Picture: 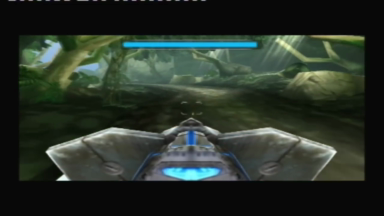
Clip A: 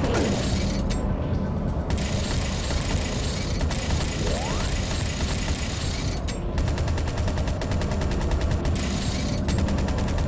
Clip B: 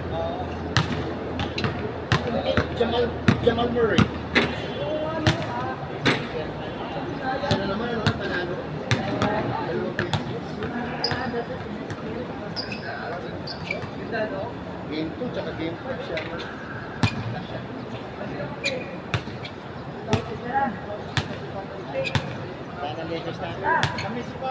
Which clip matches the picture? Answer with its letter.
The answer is A